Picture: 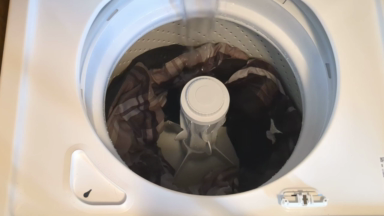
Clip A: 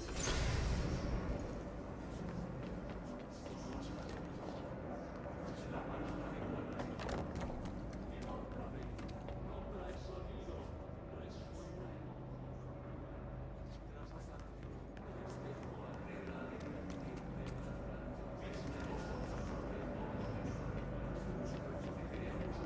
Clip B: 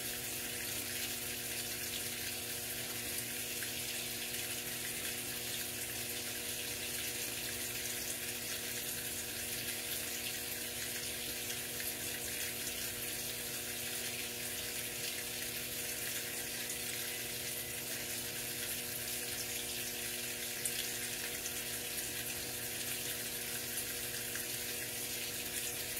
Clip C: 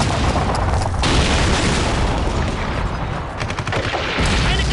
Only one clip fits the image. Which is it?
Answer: B